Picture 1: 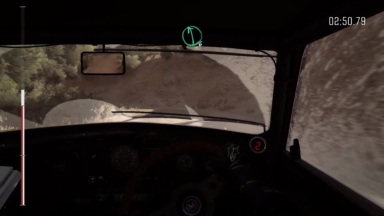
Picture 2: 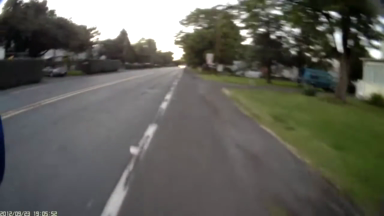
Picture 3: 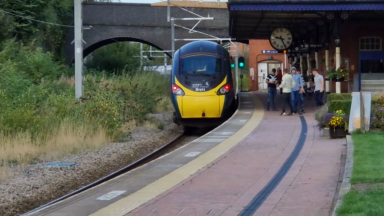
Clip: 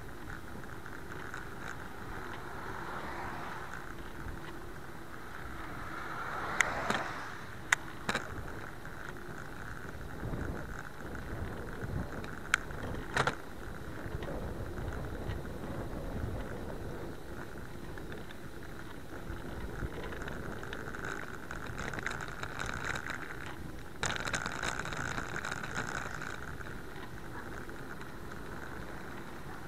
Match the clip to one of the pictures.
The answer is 2